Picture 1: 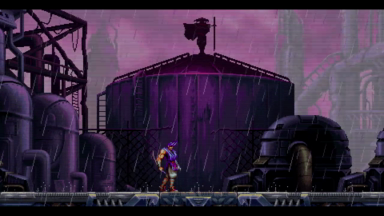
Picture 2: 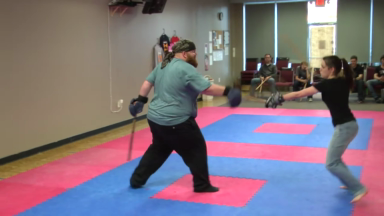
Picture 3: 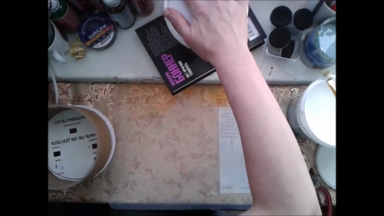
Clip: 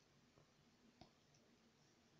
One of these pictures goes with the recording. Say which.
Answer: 3